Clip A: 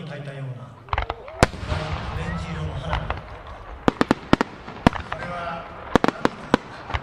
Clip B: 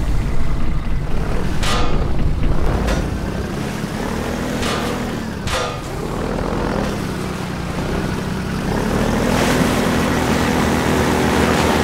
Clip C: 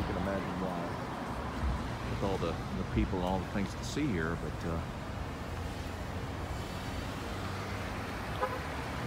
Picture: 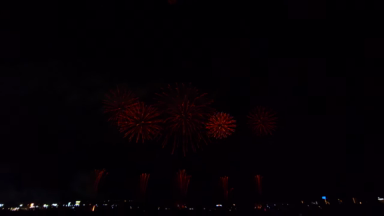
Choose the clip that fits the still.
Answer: A